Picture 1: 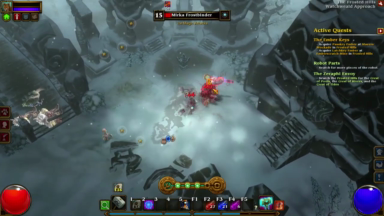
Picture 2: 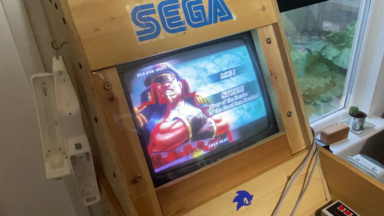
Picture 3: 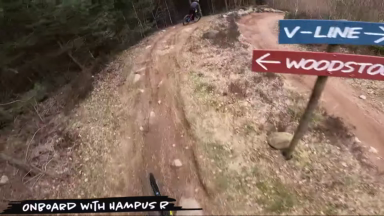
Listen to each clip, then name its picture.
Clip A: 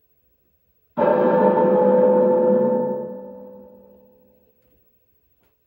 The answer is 2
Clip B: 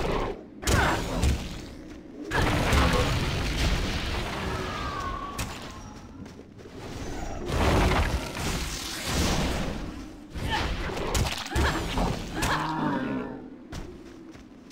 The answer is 1